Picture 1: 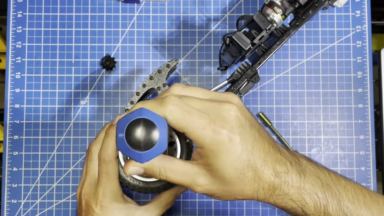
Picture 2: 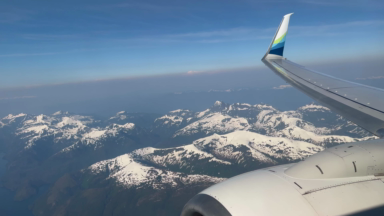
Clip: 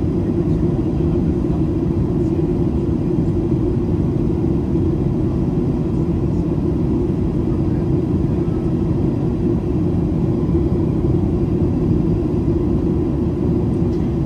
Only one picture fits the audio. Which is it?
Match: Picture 2